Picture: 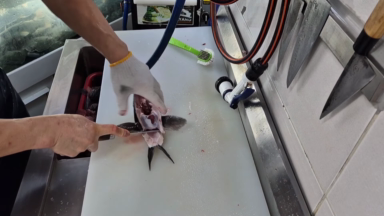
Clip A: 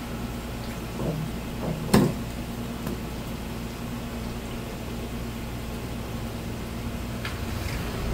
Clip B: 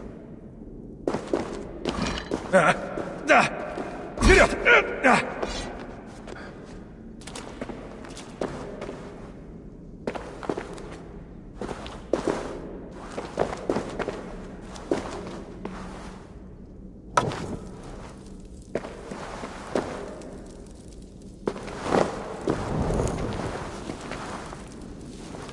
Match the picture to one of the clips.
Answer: A